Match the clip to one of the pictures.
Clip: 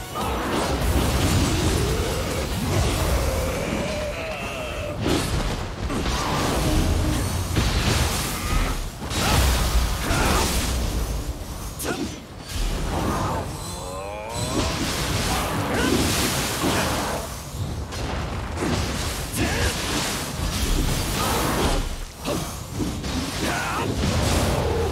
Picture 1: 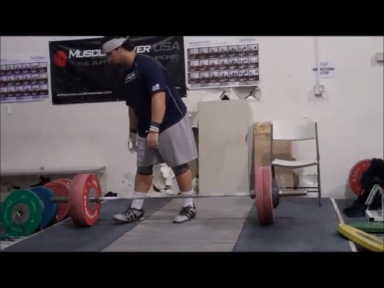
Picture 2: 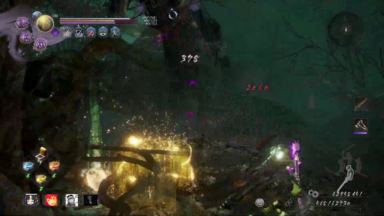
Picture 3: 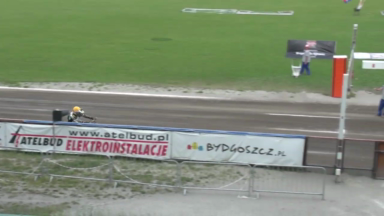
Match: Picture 2